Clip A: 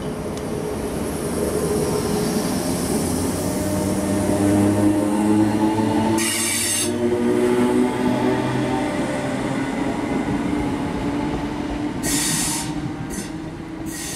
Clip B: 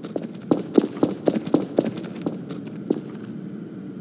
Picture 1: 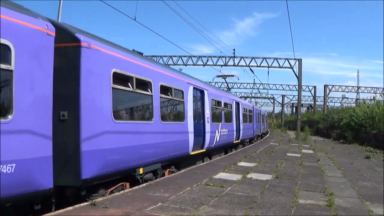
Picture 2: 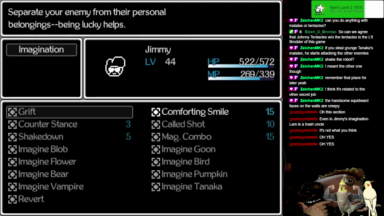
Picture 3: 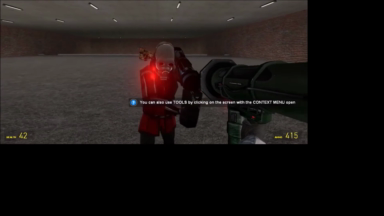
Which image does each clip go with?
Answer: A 1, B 3